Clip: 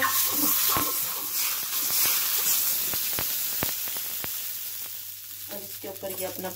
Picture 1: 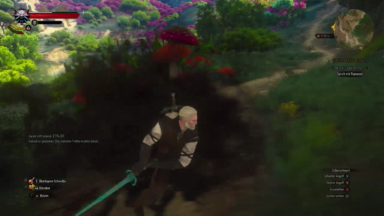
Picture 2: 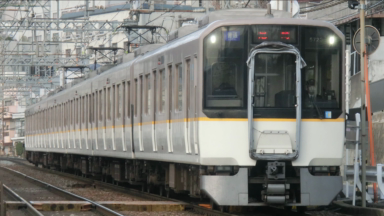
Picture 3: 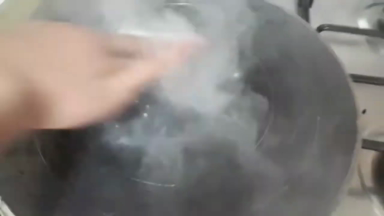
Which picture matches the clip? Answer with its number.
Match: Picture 3